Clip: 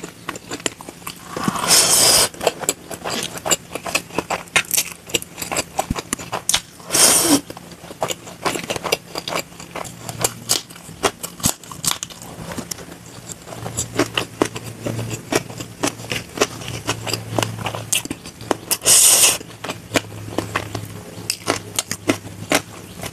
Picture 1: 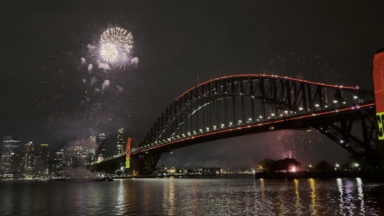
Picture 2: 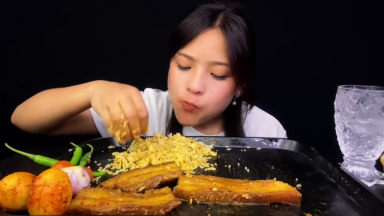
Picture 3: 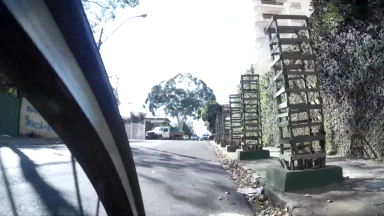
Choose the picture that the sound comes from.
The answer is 2